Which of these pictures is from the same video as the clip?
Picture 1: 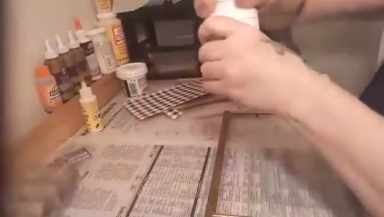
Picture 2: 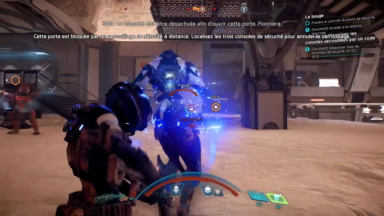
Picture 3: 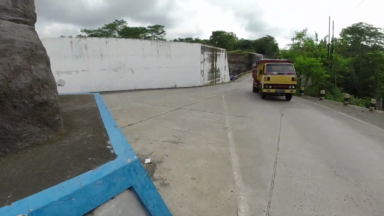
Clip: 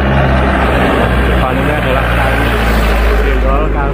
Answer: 3